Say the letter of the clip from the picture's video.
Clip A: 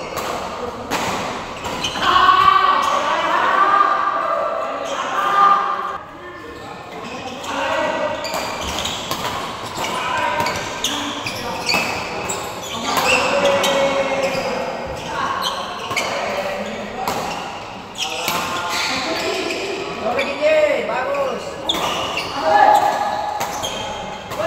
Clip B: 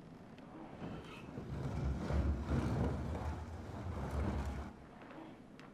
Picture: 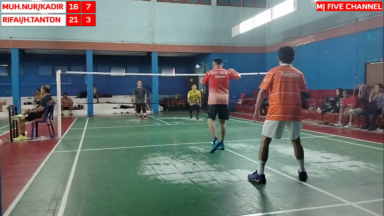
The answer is A